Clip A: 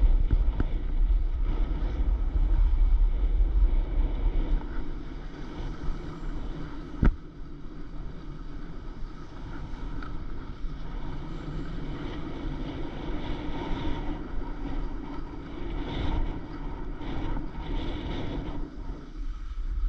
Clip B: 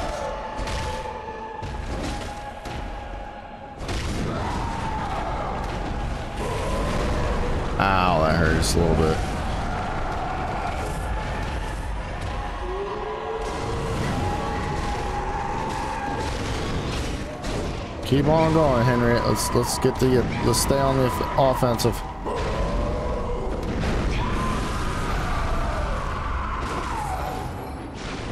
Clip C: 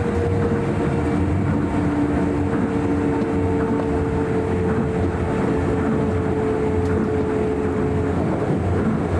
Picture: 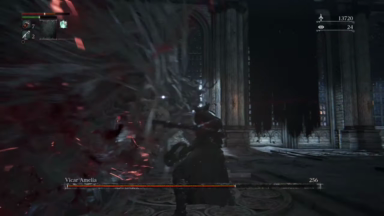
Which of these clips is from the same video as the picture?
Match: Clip B